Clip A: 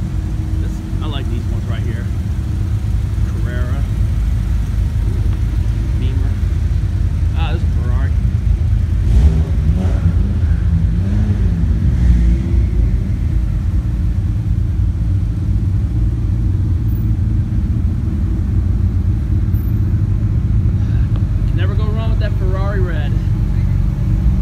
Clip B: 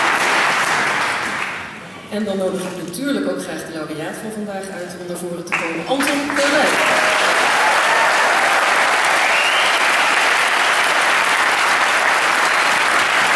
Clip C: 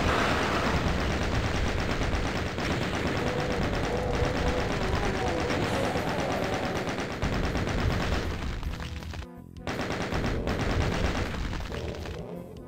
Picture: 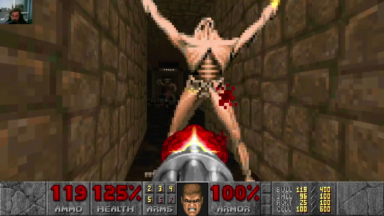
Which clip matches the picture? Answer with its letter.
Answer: C